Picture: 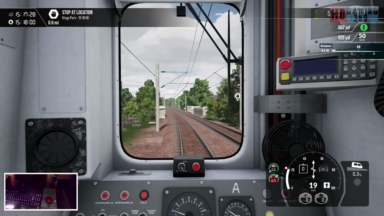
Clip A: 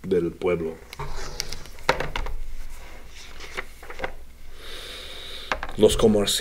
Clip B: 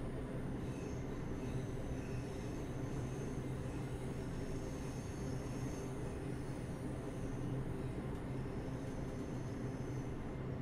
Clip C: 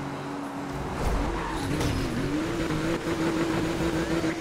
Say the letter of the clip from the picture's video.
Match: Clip B